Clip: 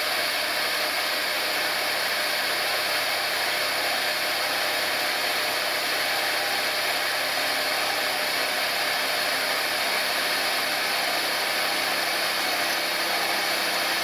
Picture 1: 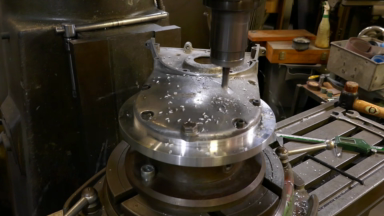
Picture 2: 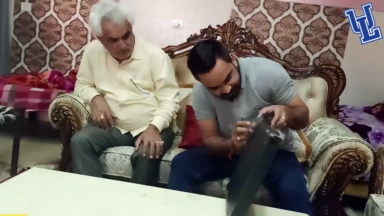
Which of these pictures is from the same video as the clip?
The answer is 1